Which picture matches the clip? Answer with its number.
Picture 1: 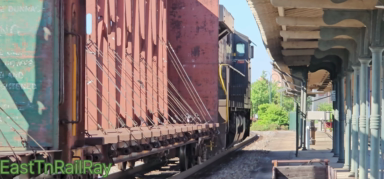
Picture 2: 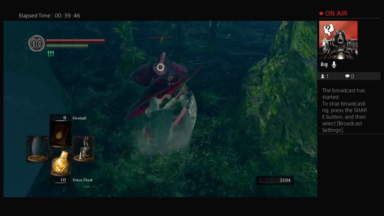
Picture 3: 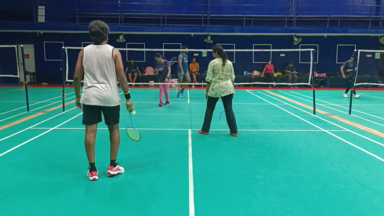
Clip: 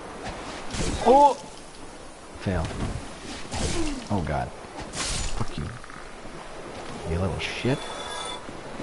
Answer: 2